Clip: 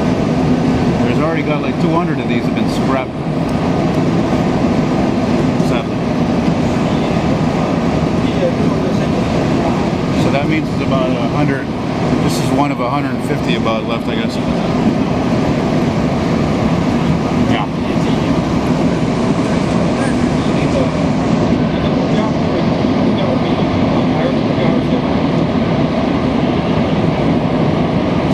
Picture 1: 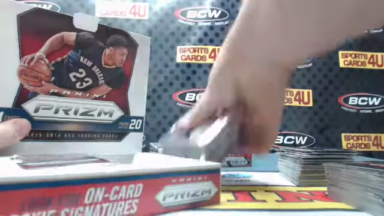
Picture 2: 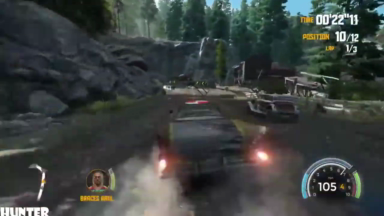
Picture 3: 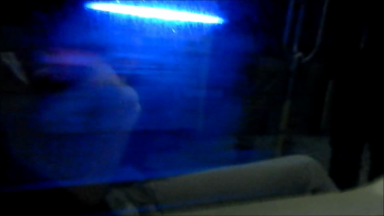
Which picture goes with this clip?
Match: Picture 3